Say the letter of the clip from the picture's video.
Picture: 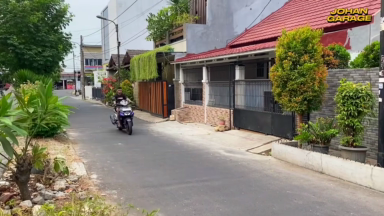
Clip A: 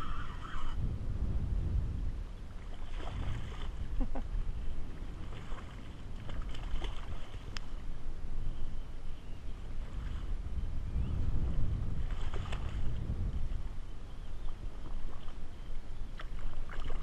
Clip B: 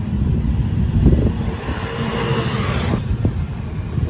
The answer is B